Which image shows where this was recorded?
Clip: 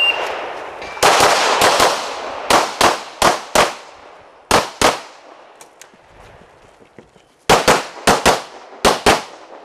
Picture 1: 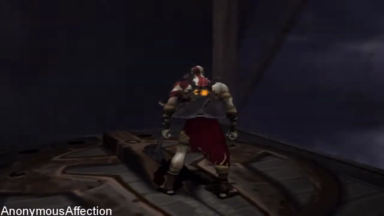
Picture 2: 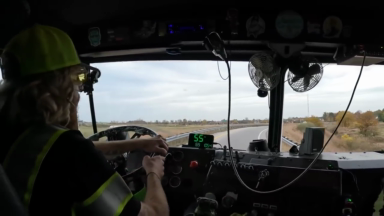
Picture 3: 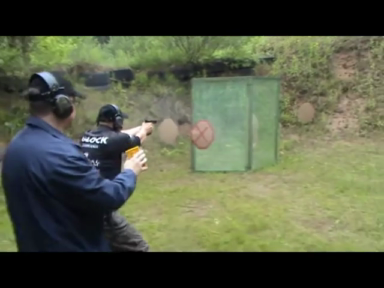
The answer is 3